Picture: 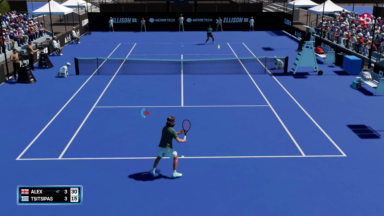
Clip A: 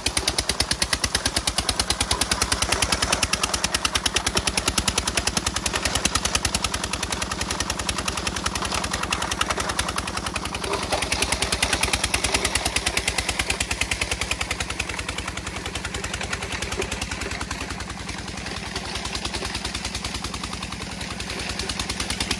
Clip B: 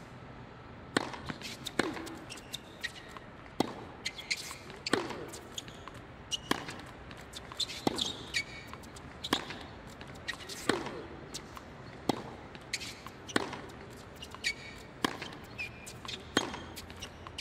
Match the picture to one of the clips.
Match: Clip B